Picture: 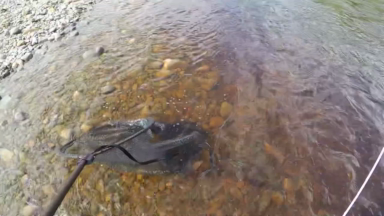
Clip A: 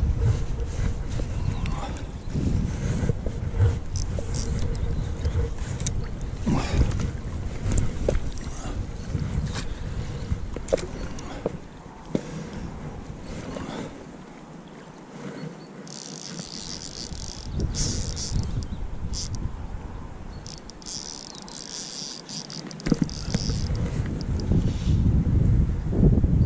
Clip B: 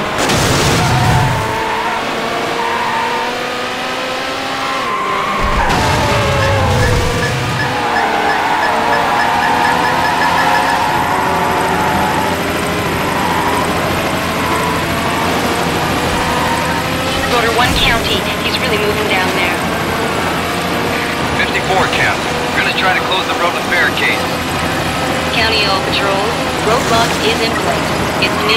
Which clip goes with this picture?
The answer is A